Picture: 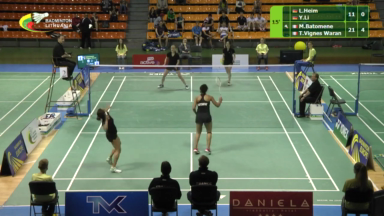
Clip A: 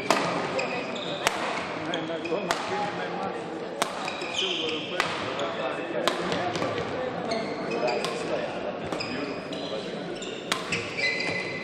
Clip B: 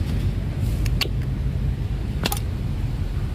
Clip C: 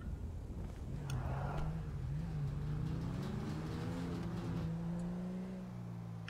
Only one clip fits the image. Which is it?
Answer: A